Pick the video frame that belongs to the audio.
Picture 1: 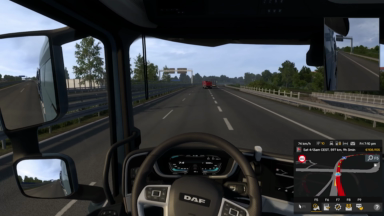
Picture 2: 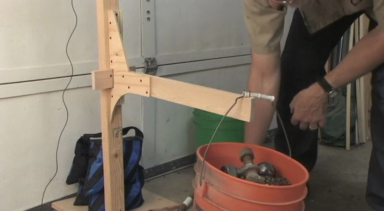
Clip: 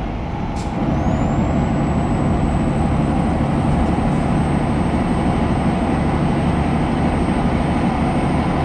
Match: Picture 1